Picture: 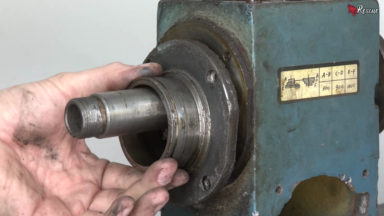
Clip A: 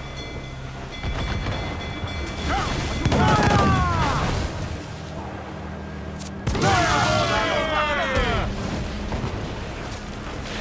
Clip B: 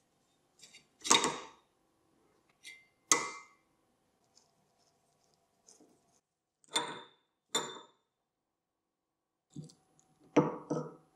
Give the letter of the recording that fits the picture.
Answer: B